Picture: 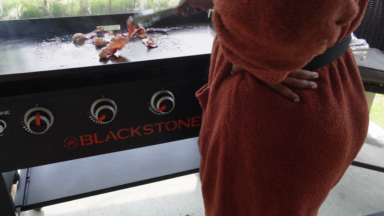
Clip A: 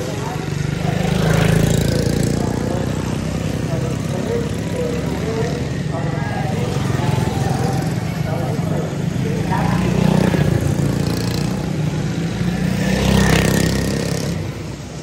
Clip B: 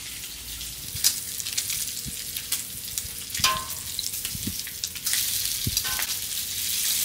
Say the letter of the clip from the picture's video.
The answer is B